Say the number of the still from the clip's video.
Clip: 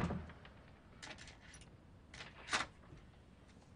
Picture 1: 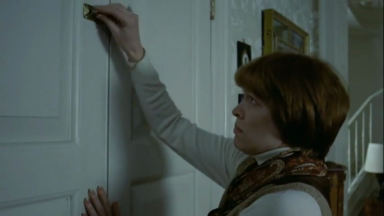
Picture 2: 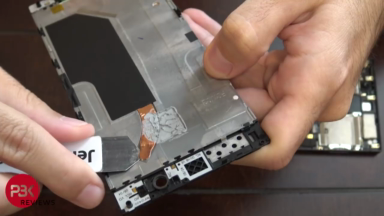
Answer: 1